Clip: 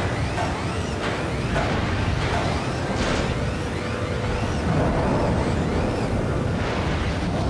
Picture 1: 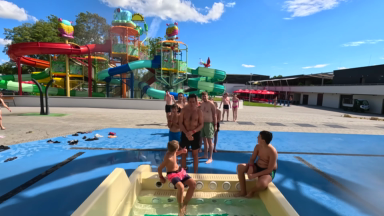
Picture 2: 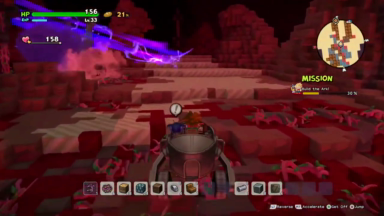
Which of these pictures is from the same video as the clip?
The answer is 2